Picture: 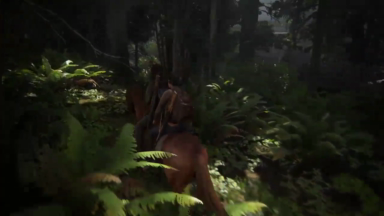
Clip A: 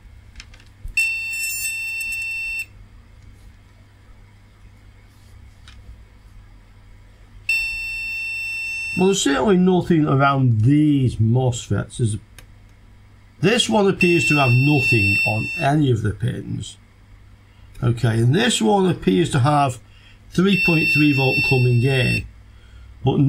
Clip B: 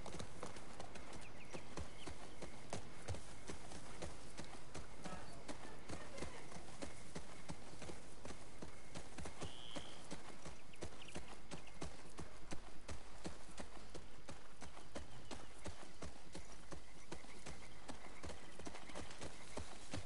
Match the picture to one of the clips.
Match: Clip B